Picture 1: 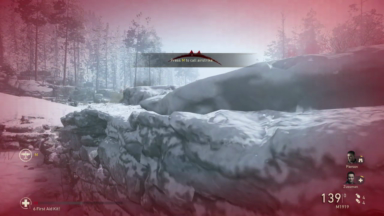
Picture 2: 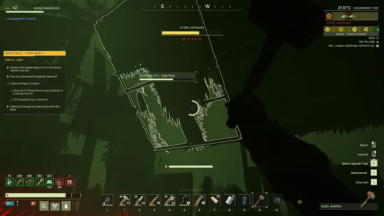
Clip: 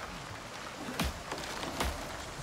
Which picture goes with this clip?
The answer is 2